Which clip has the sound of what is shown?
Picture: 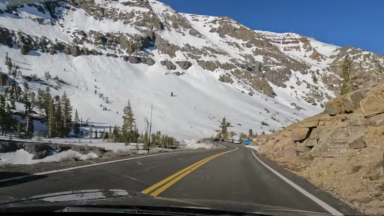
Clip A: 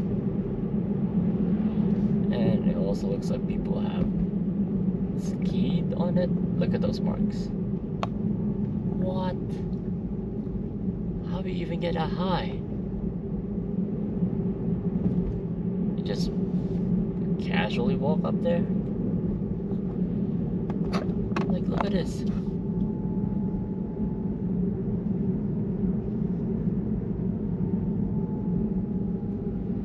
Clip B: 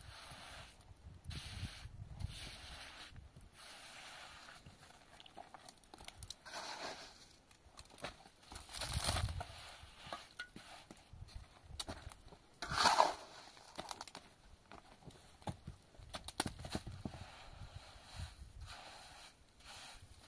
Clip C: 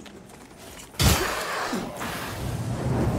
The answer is A